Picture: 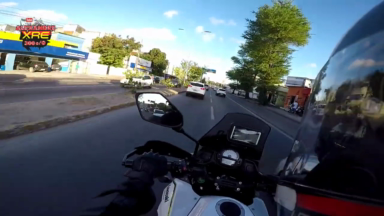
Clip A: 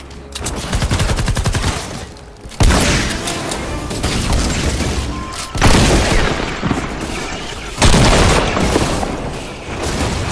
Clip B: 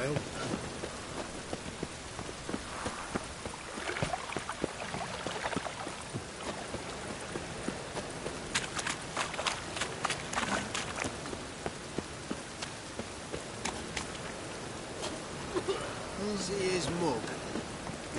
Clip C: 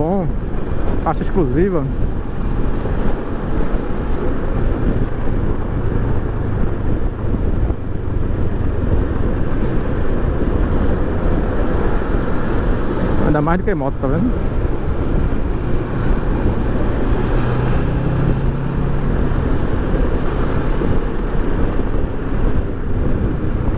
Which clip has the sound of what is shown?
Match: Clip C